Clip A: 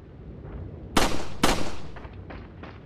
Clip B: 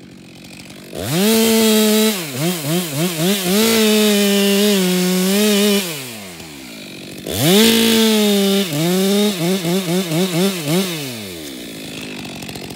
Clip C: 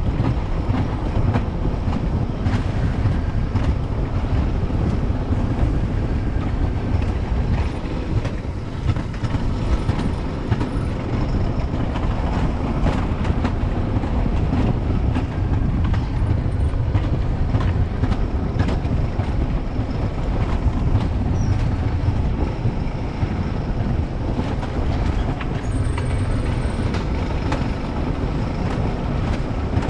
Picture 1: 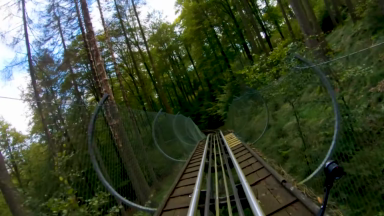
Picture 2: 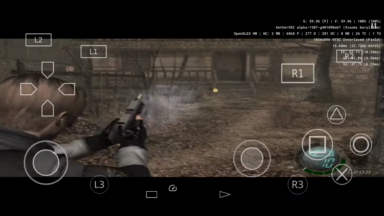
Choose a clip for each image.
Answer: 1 C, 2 A